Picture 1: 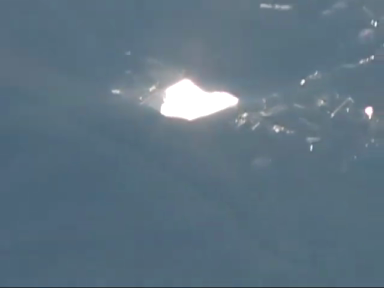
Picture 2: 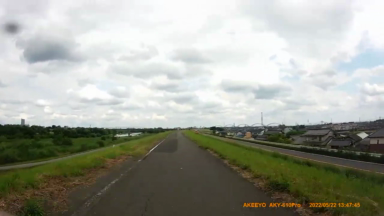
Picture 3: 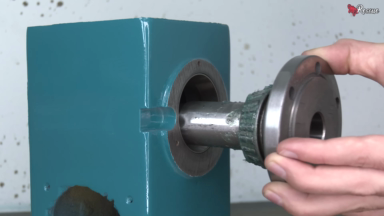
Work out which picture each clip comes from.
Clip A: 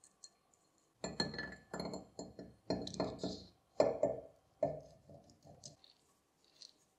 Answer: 3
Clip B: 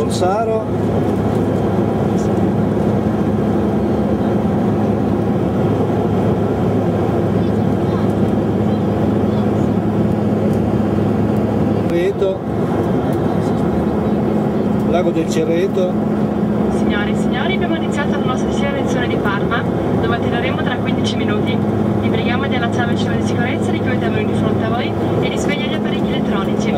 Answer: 1